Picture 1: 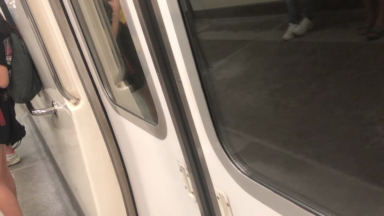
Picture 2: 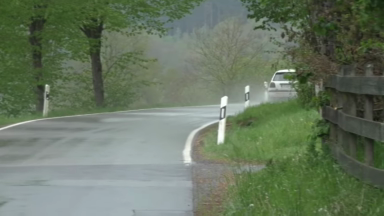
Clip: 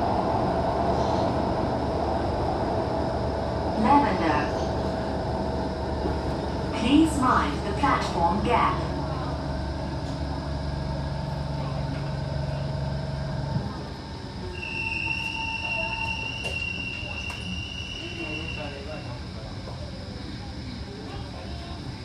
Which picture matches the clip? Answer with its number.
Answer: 1